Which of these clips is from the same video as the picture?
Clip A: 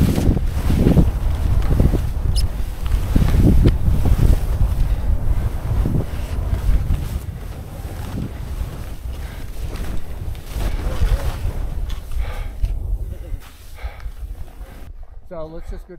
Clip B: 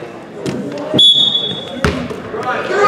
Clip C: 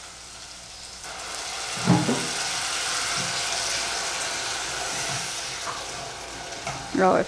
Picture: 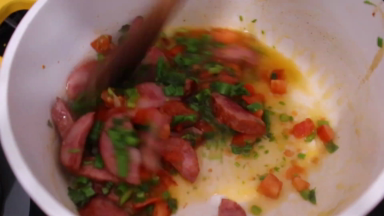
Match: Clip C